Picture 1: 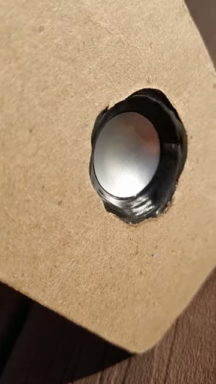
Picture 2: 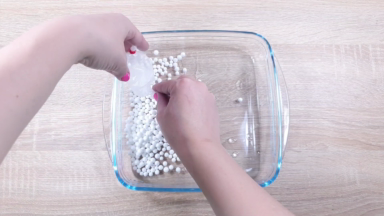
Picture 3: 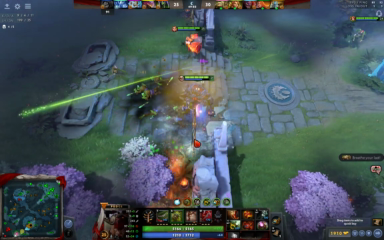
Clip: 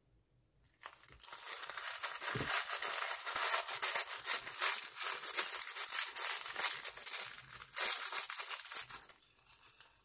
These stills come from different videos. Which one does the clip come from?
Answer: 2